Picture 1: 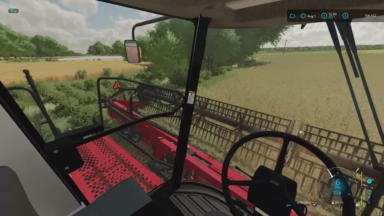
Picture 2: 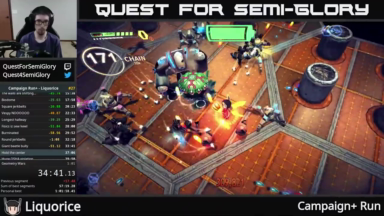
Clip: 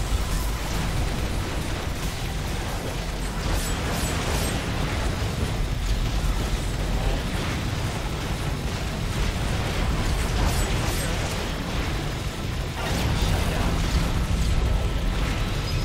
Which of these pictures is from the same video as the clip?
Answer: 2